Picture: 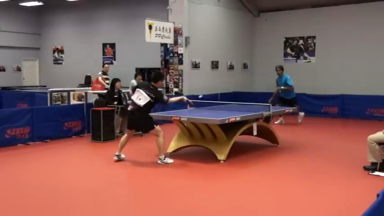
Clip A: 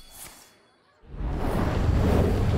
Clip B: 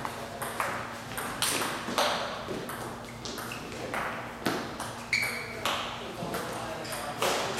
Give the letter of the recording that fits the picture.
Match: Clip B